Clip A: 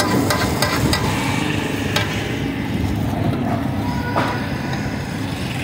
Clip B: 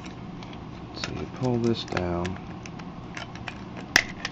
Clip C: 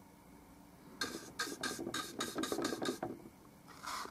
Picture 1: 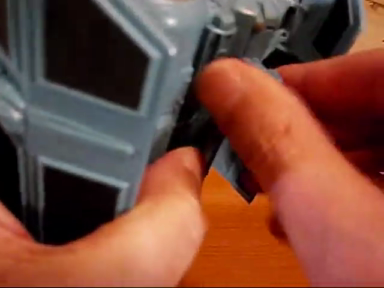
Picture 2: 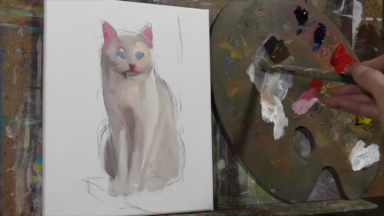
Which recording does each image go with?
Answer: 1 B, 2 C